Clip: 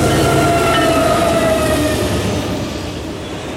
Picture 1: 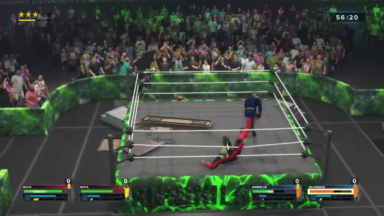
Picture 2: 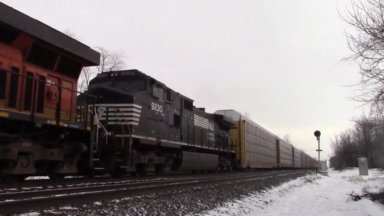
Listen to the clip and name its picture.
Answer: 2